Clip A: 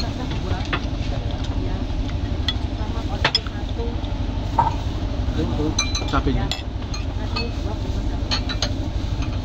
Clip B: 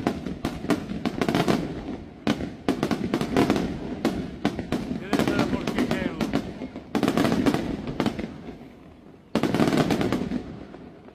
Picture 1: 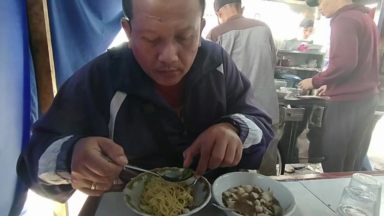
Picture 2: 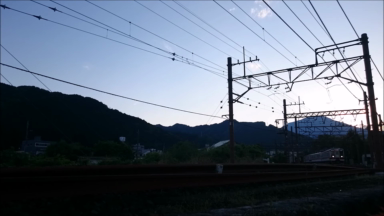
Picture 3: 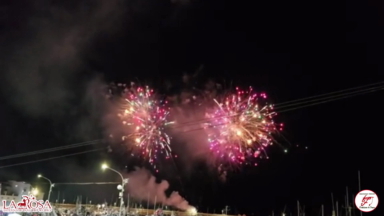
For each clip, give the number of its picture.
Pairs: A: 1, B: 3